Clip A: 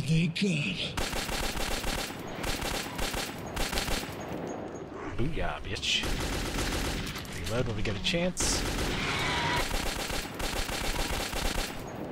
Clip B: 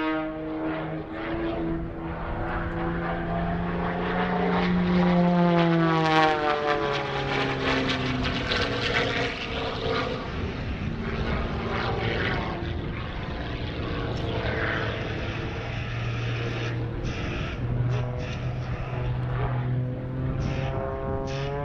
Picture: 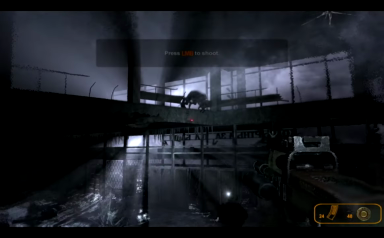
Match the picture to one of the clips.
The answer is A